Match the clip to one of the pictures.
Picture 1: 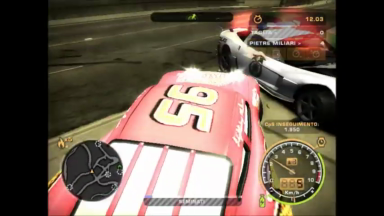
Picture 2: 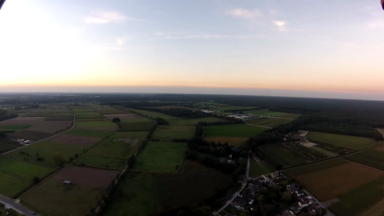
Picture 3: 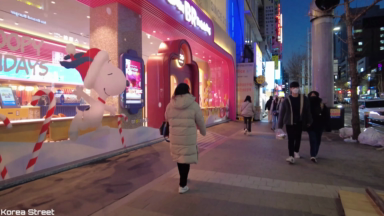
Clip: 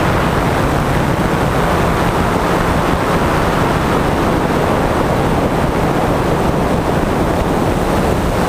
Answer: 2